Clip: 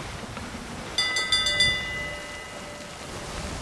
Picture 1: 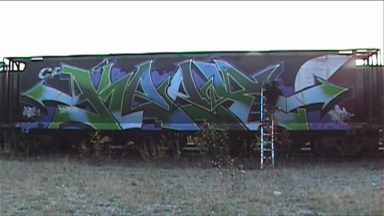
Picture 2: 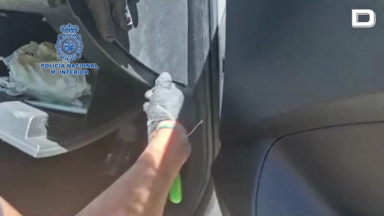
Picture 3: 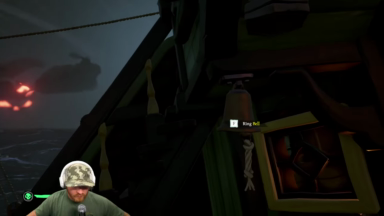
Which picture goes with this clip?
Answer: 3